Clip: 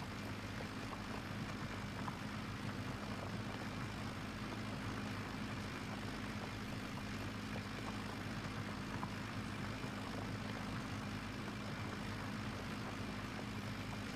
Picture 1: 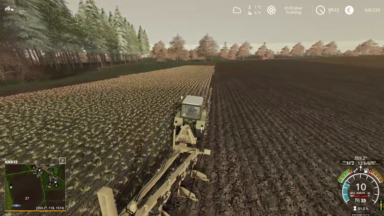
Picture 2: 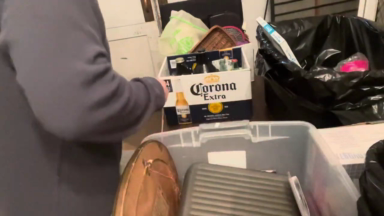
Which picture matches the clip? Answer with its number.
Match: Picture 1